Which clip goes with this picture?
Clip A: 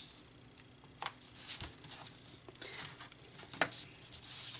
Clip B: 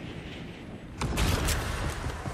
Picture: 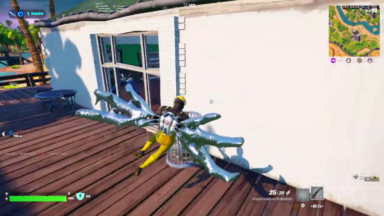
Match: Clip B